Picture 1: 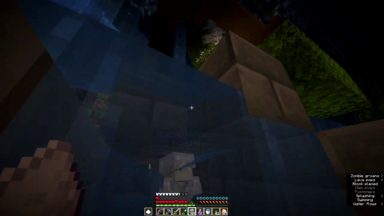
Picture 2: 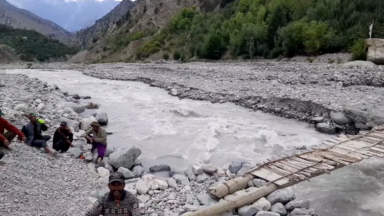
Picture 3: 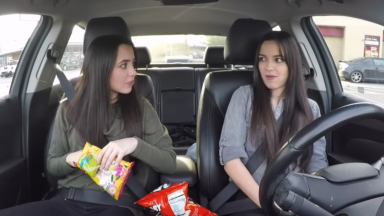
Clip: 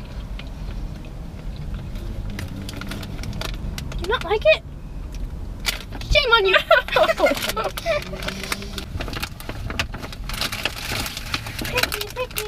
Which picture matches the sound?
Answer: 3